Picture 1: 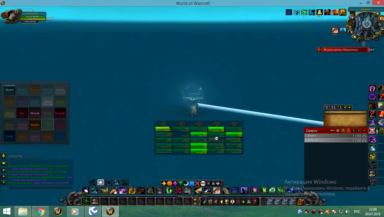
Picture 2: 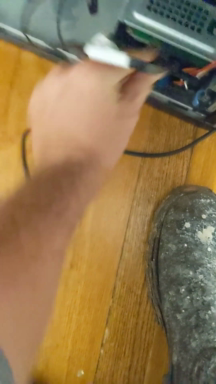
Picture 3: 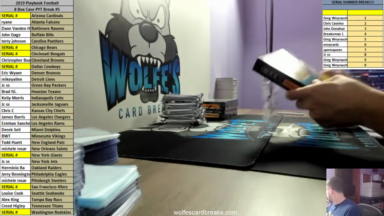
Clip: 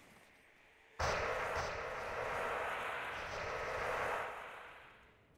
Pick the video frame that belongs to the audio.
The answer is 1